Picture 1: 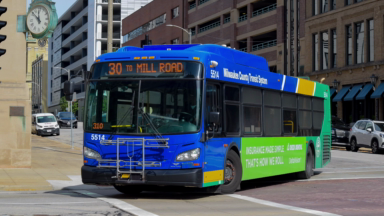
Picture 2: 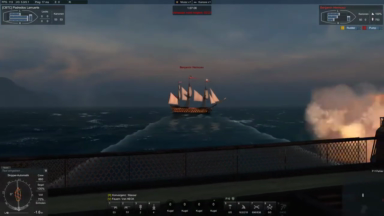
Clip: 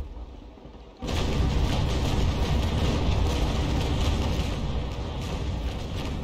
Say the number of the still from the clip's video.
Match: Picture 2